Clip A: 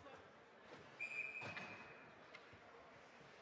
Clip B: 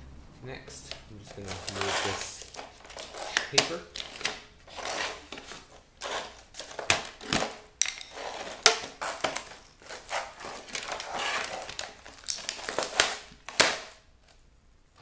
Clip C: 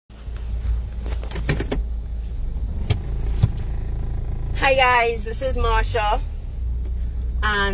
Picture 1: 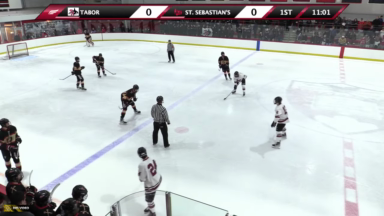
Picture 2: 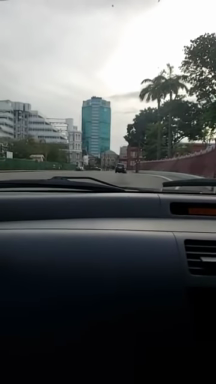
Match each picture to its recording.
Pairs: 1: A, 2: C